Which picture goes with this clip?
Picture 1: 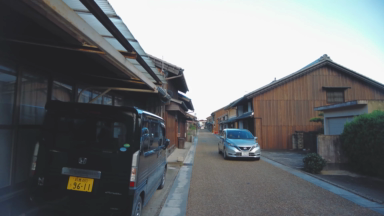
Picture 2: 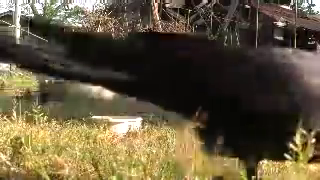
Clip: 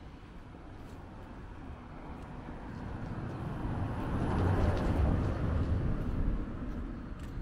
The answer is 1